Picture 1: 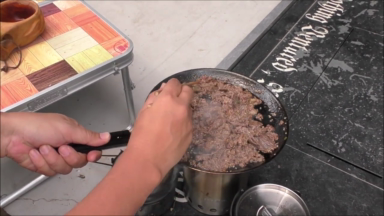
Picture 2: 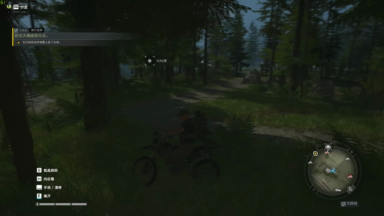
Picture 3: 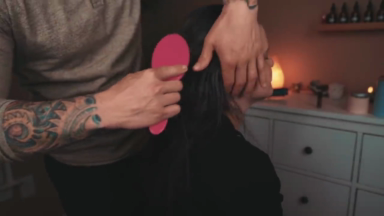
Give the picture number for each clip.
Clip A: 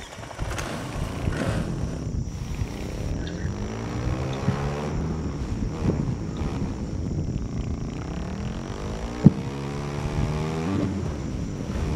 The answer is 2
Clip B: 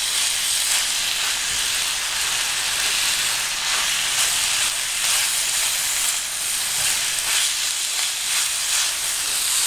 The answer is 1